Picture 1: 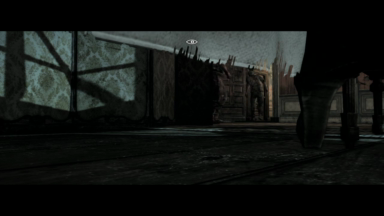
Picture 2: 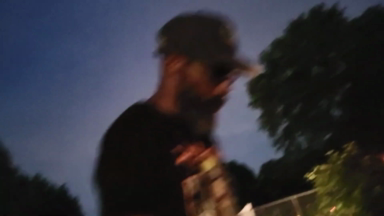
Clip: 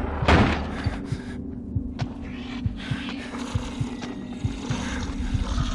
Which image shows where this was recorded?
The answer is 1